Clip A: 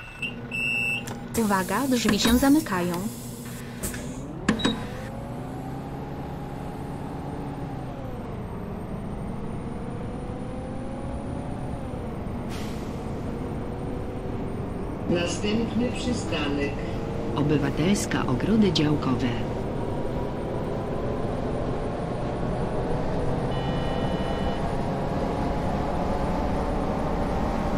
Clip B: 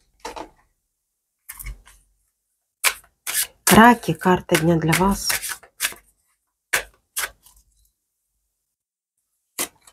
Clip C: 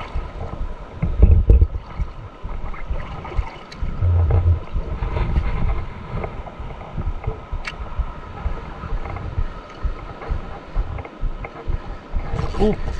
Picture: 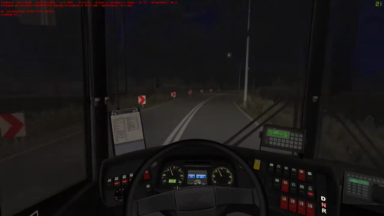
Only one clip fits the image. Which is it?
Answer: A